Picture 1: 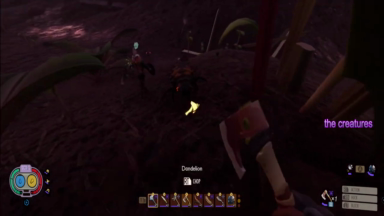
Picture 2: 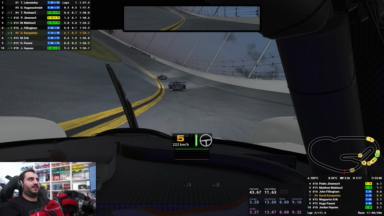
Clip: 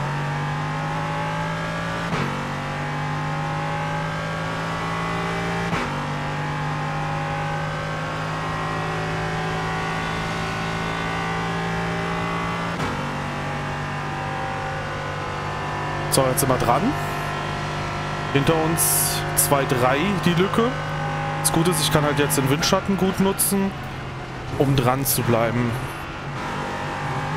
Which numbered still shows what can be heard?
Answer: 2